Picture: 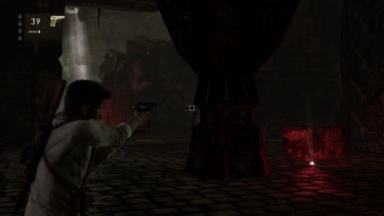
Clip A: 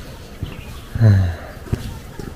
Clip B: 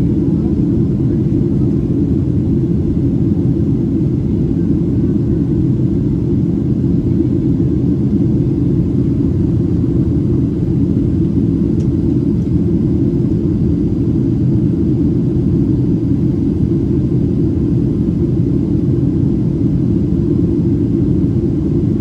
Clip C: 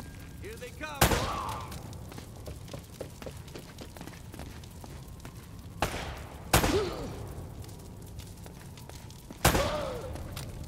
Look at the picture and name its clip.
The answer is C